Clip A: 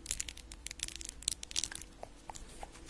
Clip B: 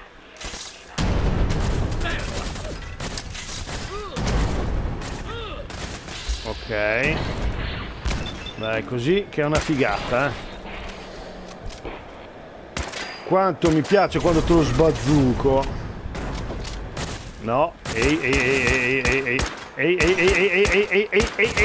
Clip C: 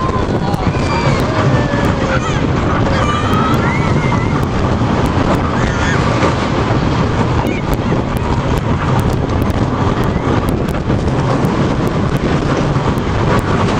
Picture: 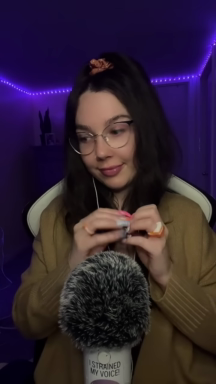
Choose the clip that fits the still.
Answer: A